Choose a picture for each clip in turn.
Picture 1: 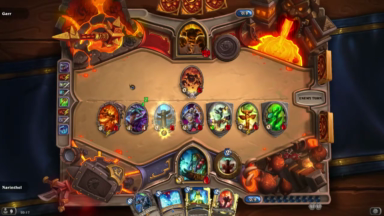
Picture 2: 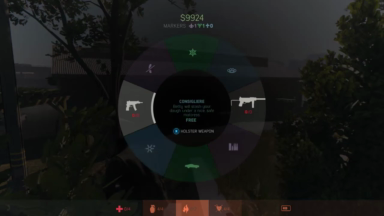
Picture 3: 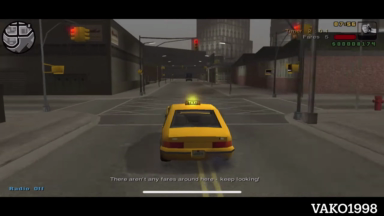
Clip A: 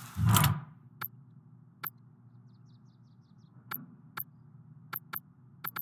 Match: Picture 2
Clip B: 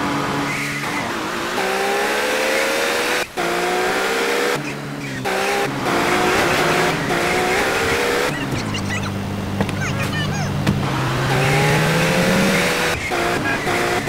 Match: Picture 3